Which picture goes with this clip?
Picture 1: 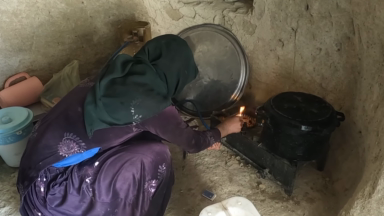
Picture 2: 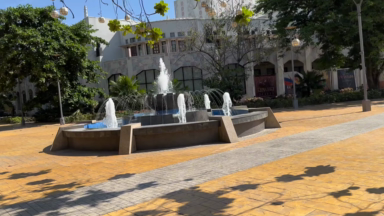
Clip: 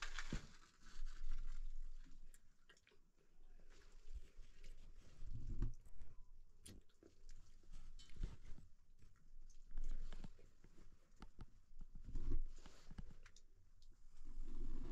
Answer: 1